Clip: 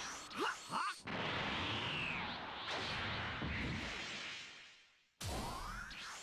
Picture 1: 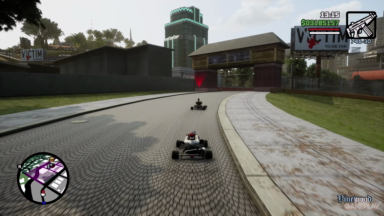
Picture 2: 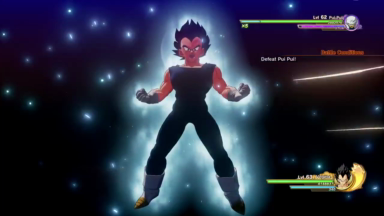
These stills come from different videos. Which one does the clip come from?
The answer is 2